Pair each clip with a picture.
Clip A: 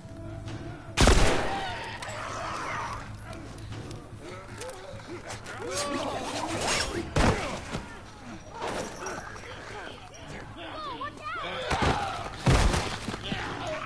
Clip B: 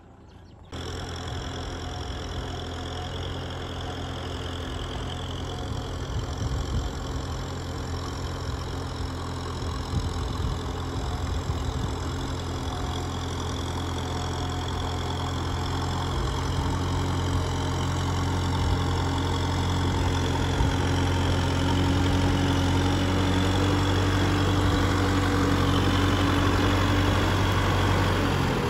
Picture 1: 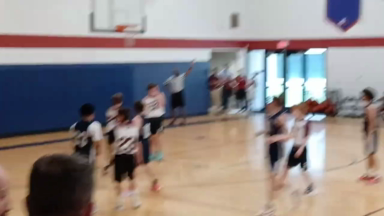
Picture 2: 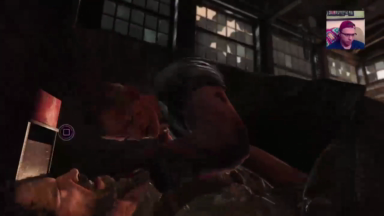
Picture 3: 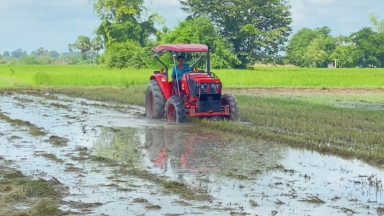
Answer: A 2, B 3